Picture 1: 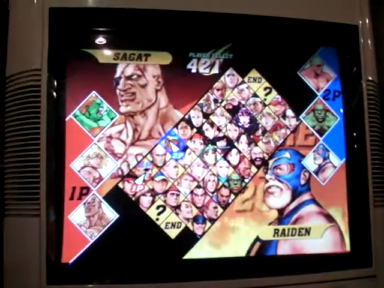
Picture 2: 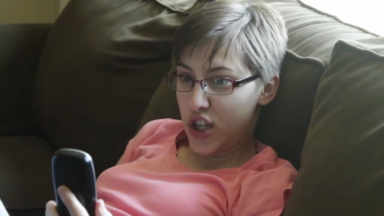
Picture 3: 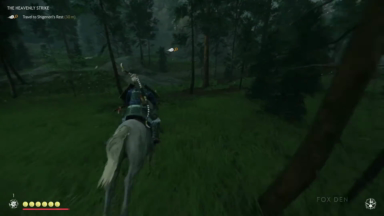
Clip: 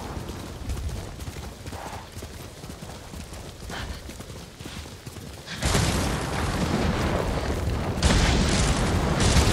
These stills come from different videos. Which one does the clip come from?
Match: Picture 3